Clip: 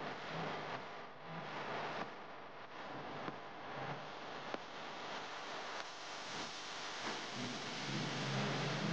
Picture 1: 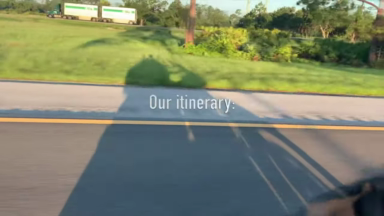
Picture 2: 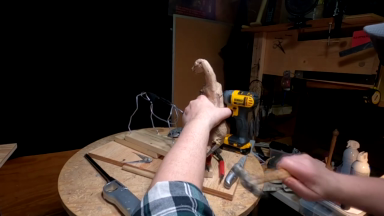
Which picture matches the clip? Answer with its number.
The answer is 1